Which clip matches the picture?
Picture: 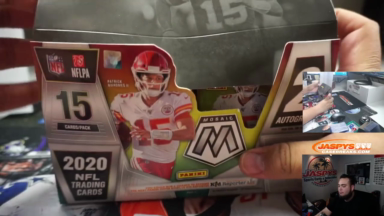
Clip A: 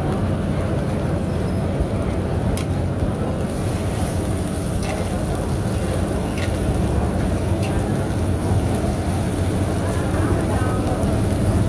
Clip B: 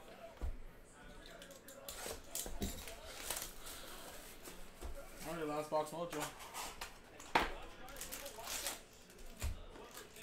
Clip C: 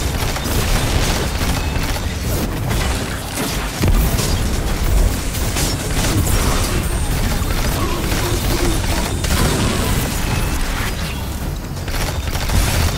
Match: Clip B